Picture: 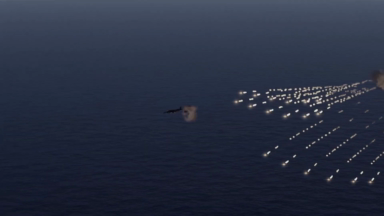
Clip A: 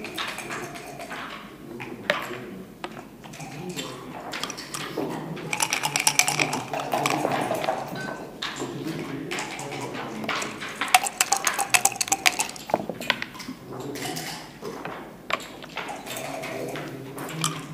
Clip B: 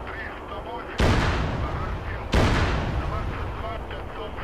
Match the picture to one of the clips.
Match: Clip B